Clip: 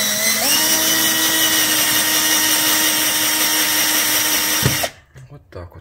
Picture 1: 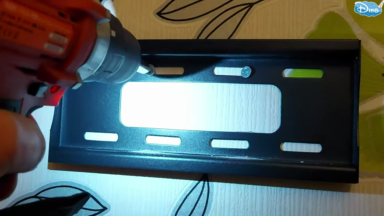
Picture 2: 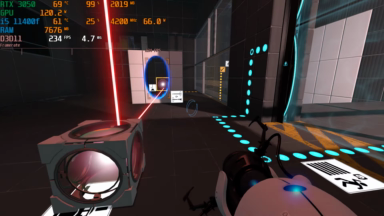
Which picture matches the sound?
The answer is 1